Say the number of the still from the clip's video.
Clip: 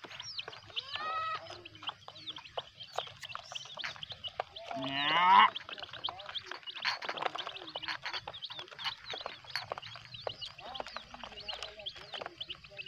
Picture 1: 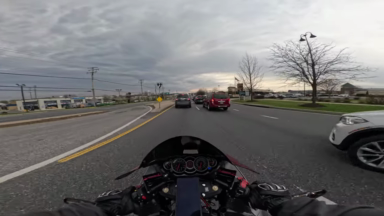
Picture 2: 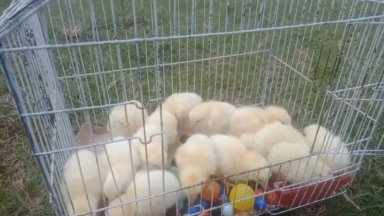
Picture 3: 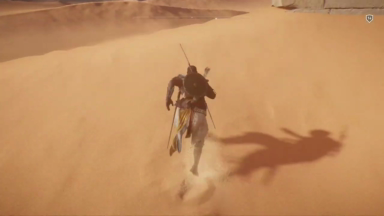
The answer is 2